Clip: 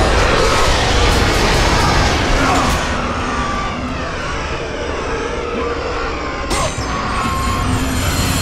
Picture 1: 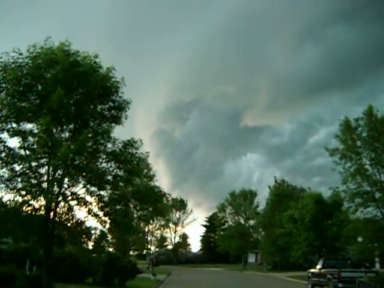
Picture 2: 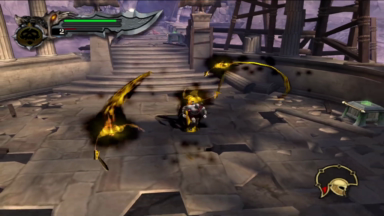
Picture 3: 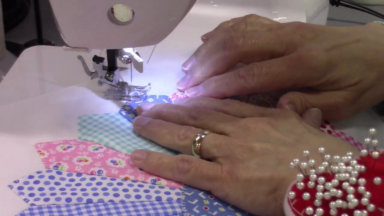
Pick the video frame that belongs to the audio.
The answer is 2